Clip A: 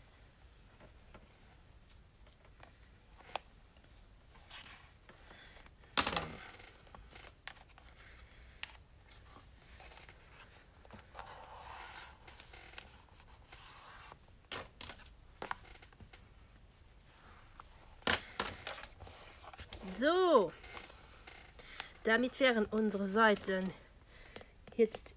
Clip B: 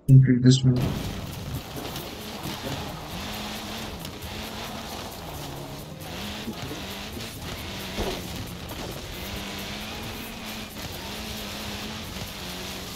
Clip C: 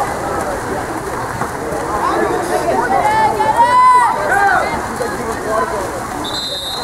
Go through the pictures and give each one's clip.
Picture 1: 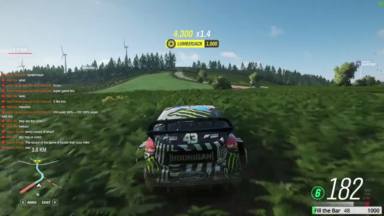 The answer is B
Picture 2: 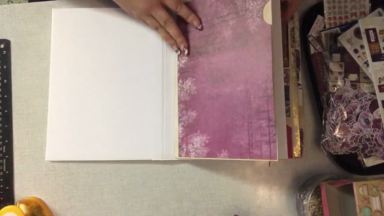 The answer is A